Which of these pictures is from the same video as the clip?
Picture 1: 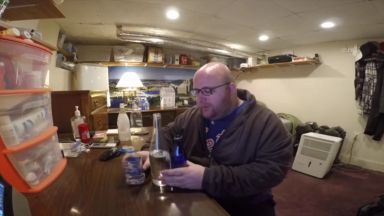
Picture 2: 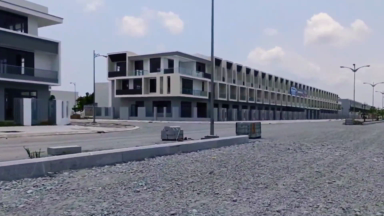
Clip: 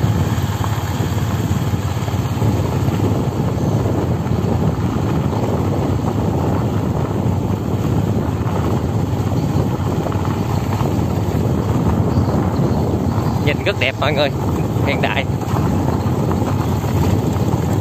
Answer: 2